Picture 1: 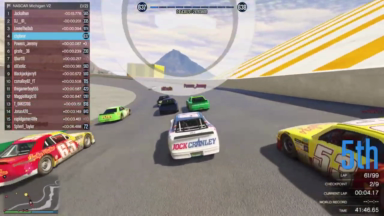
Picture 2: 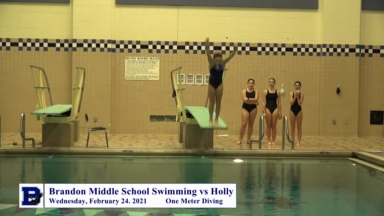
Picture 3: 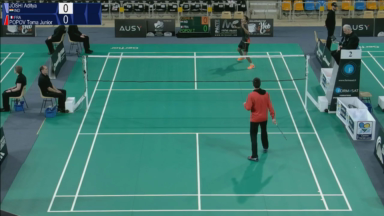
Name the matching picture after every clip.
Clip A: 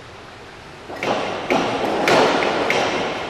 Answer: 2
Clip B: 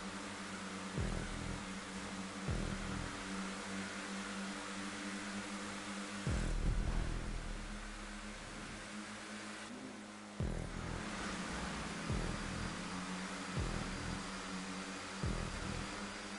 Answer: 1